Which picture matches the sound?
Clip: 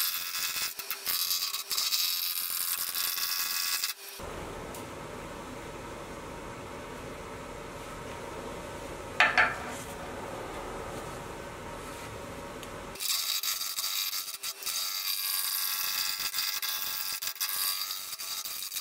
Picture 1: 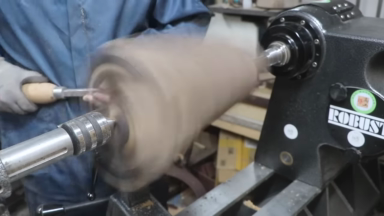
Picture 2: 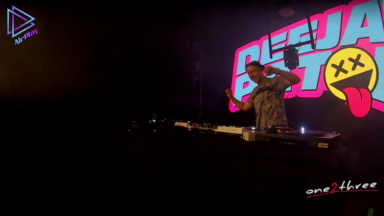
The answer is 1